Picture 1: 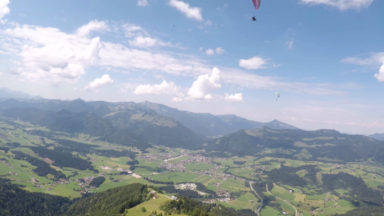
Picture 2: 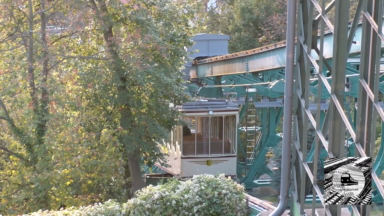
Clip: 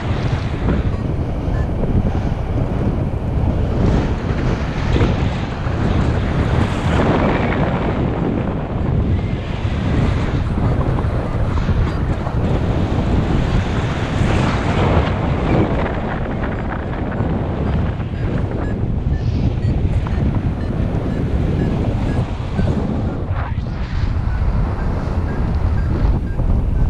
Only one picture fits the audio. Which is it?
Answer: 1